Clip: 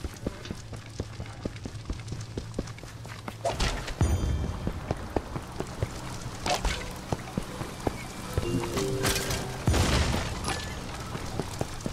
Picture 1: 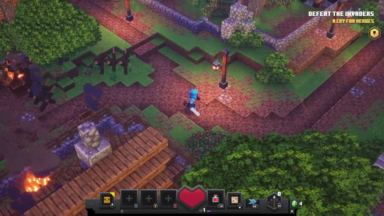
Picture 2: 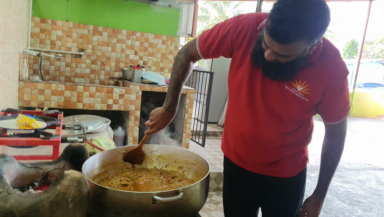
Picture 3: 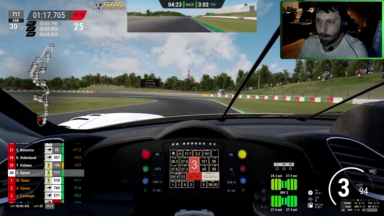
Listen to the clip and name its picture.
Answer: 1